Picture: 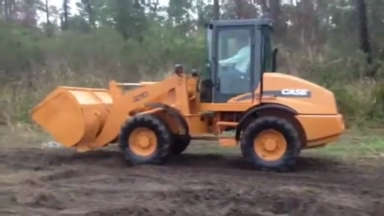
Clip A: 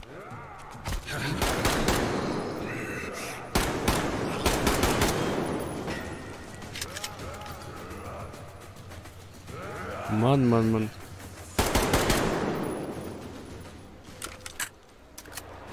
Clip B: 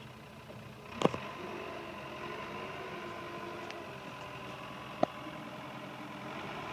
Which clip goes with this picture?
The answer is B